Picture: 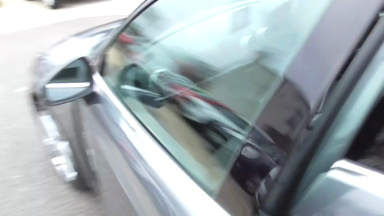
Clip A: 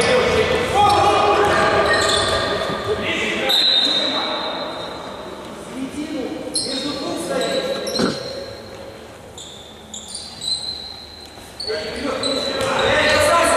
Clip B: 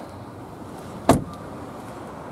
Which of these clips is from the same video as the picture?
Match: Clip B